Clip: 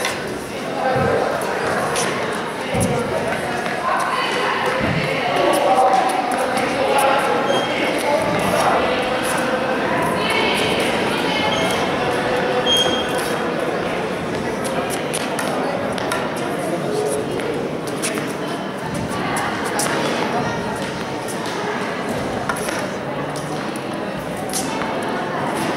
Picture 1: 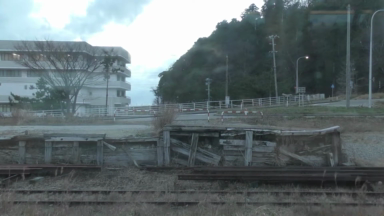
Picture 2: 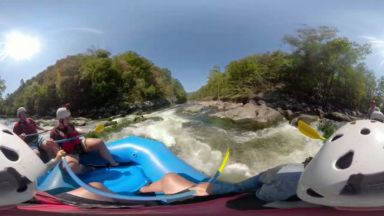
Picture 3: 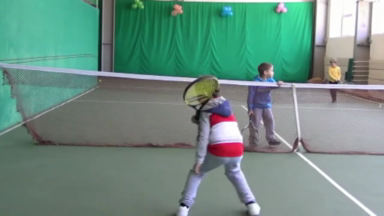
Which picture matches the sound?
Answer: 3